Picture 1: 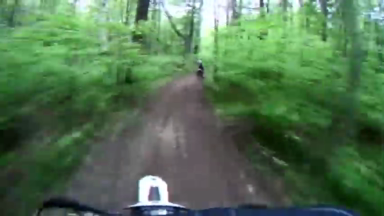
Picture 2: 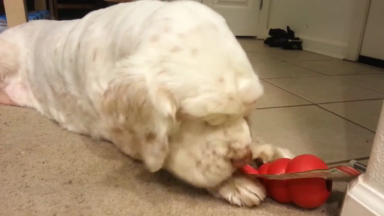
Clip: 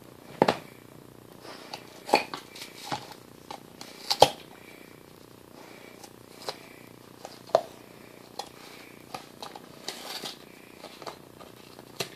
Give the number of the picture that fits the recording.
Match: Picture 2